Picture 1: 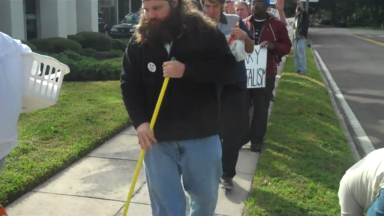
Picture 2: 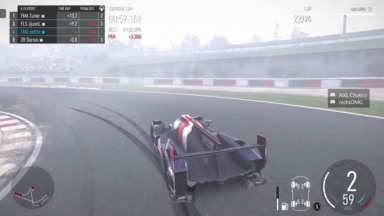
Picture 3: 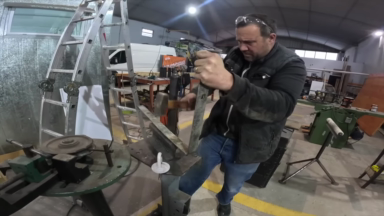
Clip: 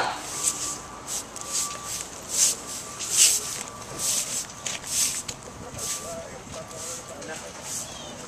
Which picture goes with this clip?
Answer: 1